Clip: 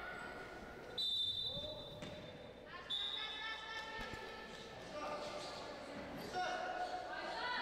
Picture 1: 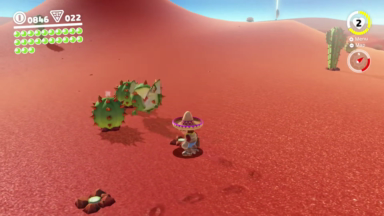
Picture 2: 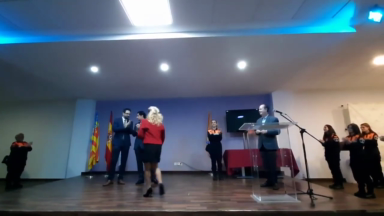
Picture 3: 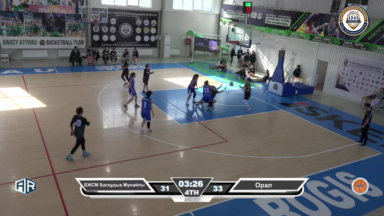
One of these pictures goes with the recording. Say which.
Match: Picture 3